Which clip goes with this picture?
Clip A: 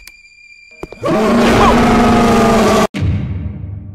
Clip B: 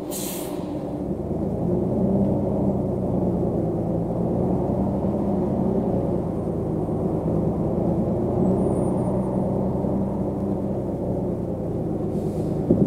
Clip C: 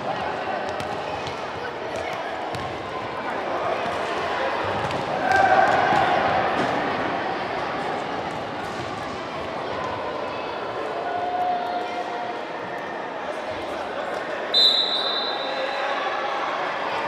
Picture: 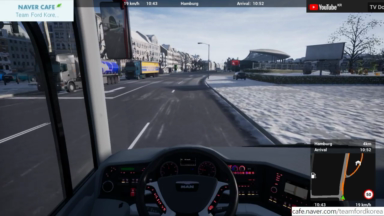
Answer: B